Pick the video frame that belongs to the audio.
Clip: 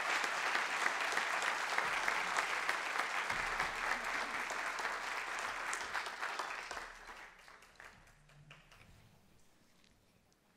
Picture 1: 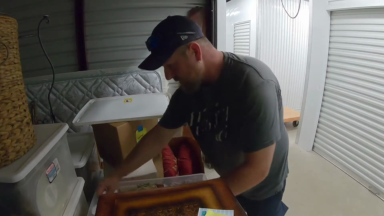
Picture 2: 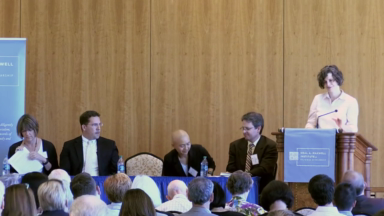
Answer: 2